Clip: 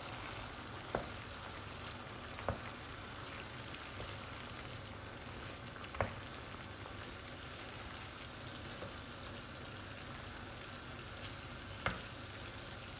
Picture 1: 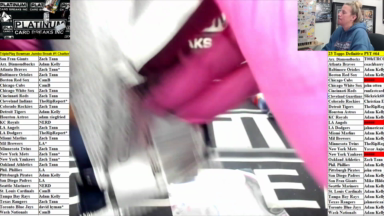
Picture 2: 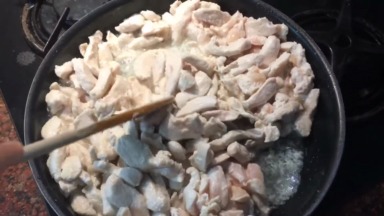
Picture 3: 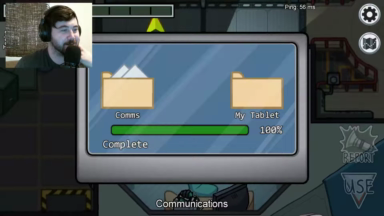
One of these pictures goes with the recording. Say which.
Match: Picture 2